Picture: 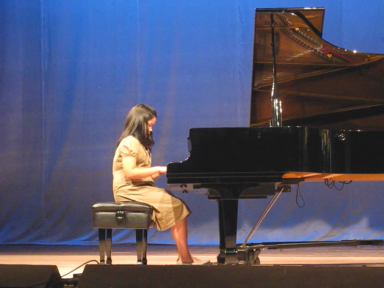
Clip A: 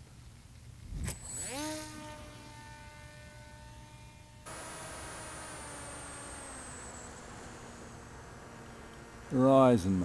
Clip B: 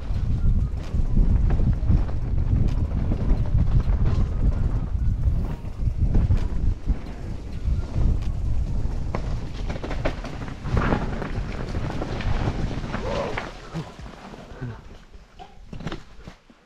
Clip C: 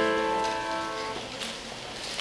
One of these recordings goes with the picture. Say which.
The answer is C